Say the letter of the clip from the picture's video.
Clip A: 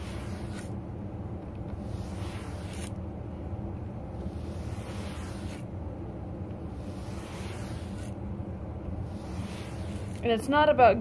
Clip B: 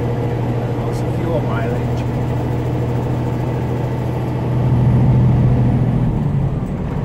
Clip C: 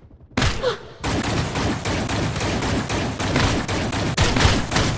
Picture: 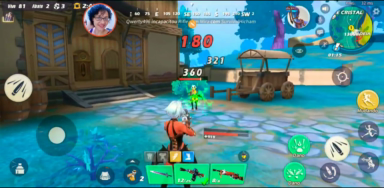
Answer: C